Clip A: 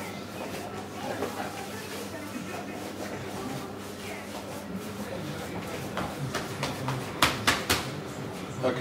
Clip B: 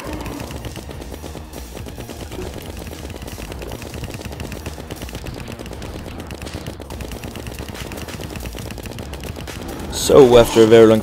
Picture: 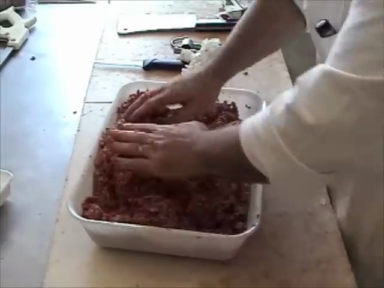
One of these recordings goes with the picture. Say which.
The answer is A